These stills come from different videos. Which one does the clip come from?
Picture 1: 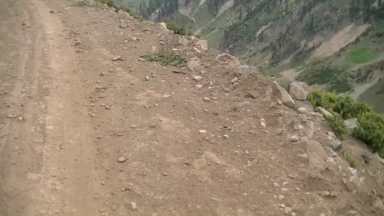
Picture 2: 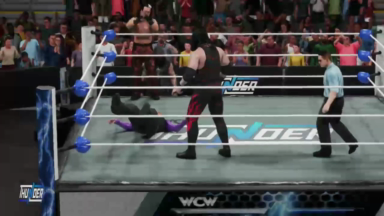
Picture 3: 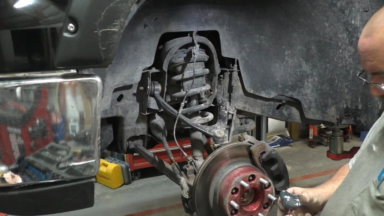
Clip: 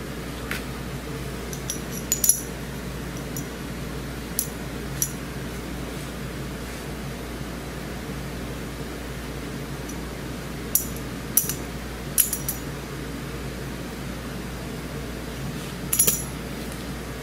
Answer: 3